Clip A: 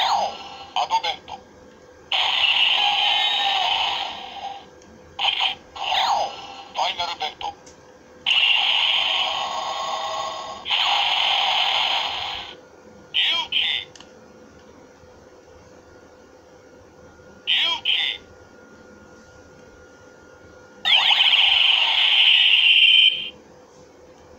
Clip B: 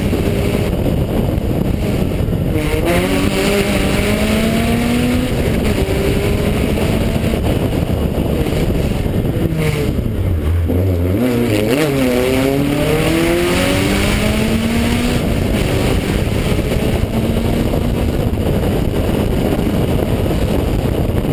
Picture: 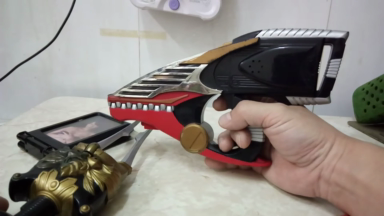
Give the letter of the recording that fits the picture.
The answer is A